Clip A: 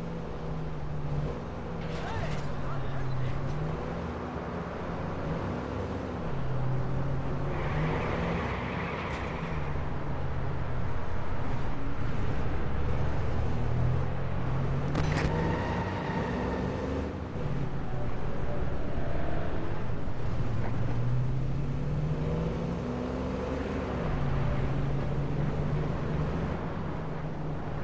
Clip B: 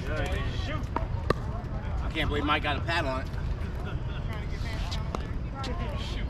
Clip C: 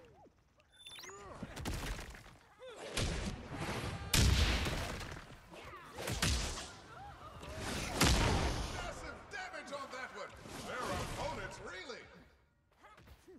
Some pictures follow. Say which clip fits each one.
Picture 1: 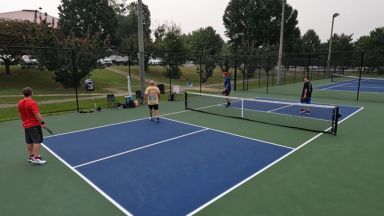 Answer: B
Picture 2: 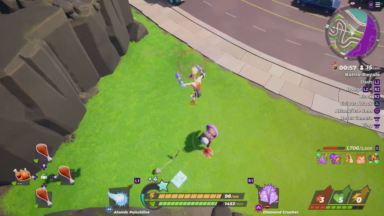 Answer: C